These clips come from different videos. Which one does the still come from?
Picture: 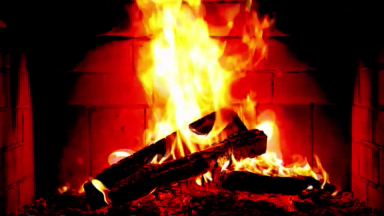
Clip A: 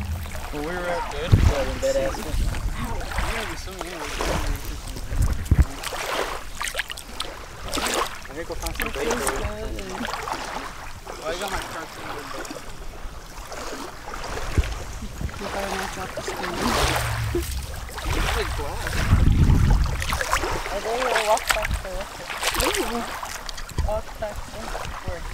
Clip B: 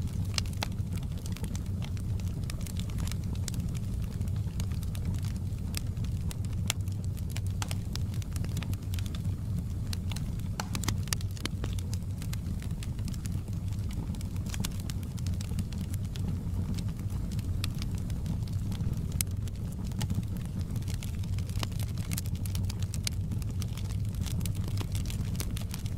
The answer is B